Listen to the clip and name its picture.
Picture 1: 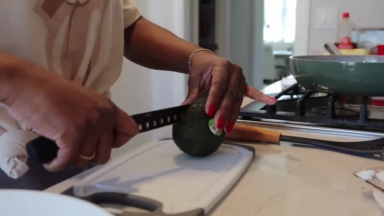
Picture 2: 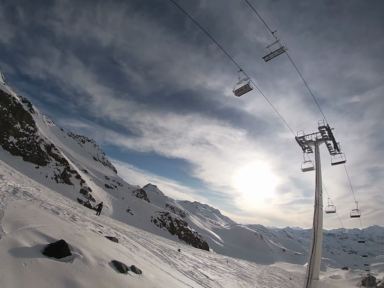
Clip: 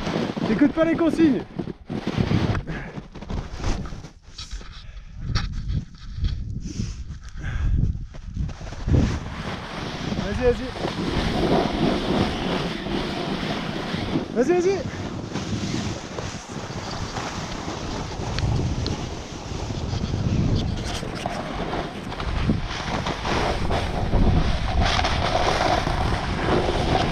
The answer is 2